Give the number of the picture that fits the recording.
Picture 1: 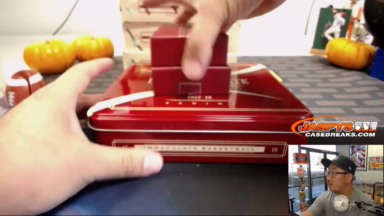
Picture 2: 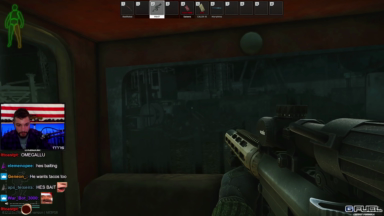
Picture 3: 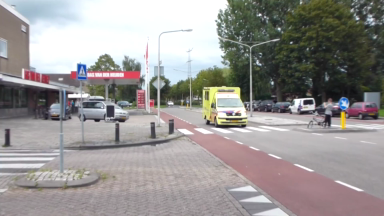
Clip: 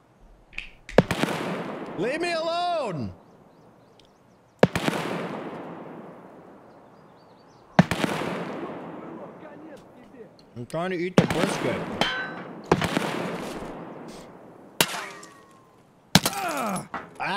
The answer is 2